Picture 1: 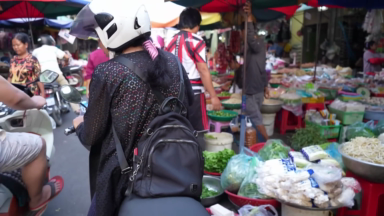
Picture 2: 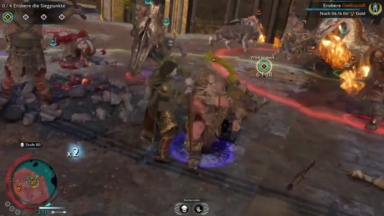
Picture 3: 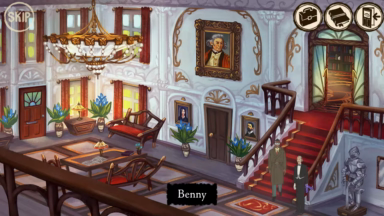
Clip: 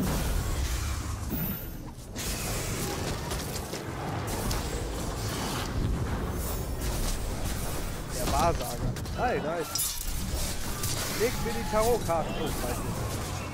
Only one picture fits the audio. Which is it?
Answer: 2